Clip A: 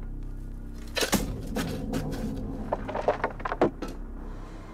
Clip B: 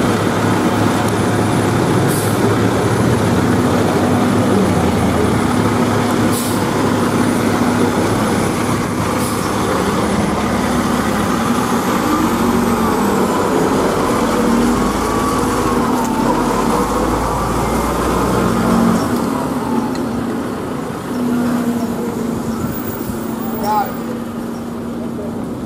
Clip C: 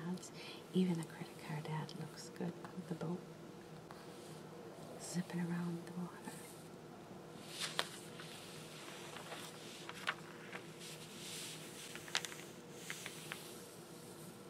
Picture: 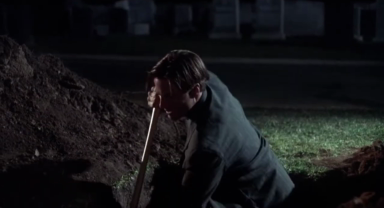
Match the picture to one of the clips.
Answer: A